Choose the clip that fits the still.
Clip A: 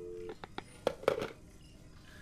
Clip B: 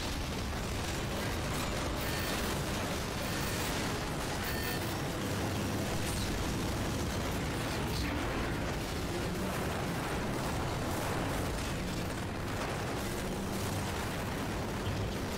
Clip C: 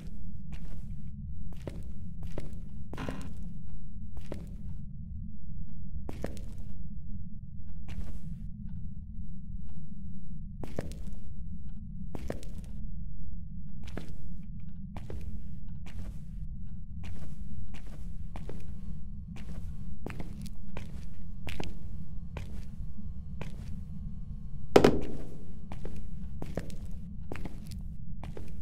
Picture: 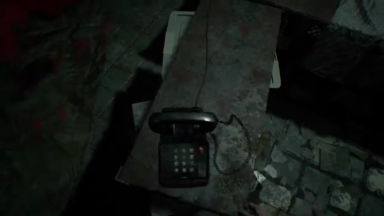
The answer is A